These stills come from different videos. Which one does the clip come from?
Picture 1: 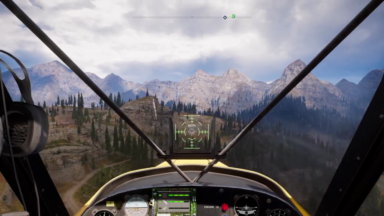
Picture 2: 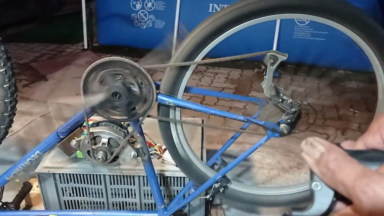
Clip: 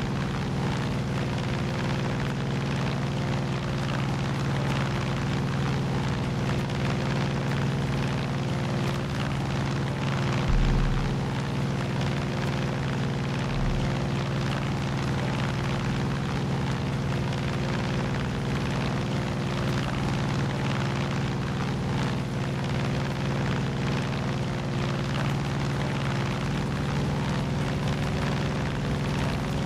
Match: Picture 1